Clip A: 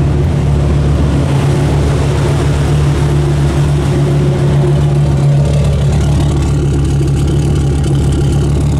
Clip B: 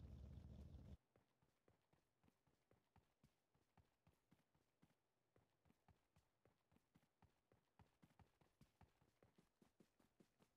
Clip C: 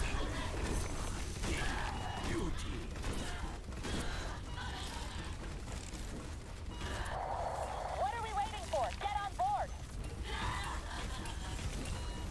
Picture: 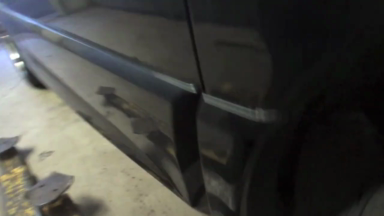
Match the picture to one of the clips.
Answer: A